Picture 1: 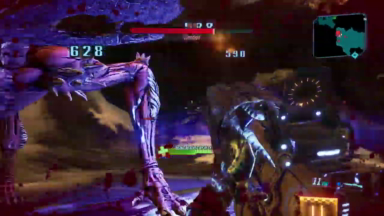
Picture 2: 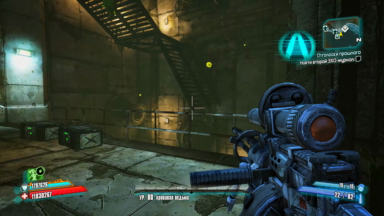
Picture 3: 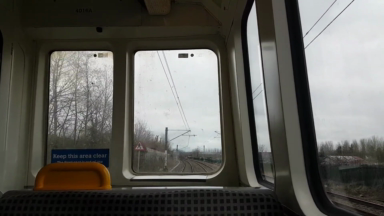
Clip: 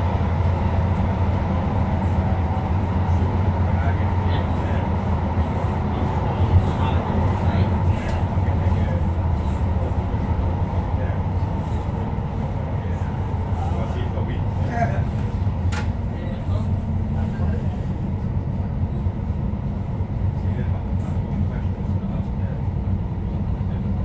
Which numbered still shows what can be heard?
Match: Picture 3